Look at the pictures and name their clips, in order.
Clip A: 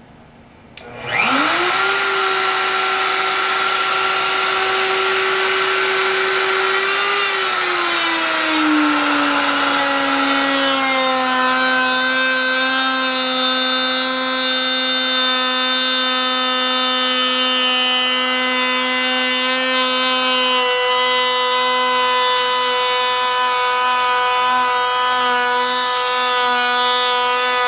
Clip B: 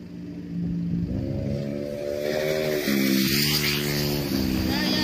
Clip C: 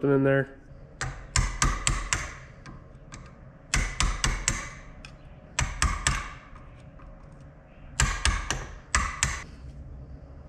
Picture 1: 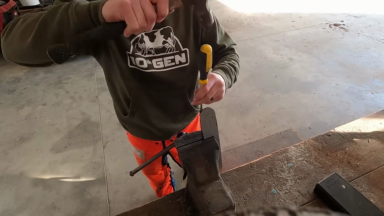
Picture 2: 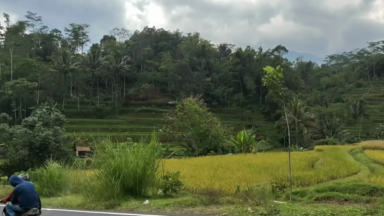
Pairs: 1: C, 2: B